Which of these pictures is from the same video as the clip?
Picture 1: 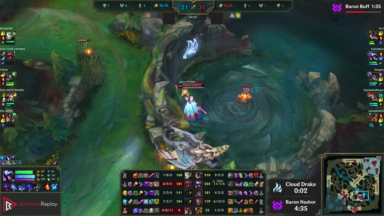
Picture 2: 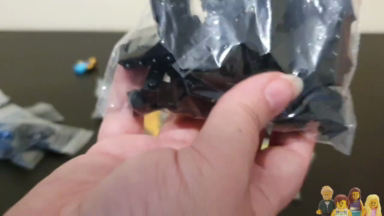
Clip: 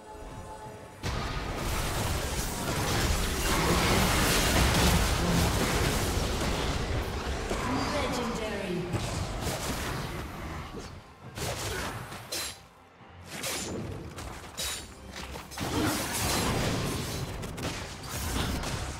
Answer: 1